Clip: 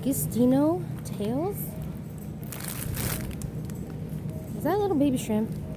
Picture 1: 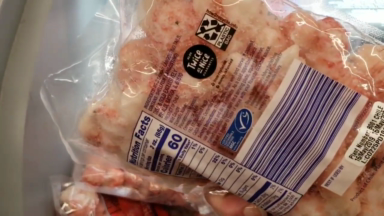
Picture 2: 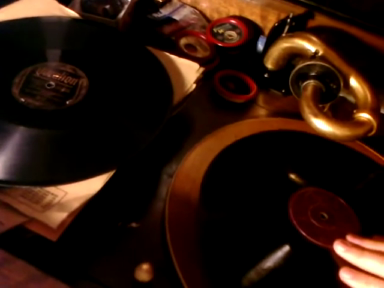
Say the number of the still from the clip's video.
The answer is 1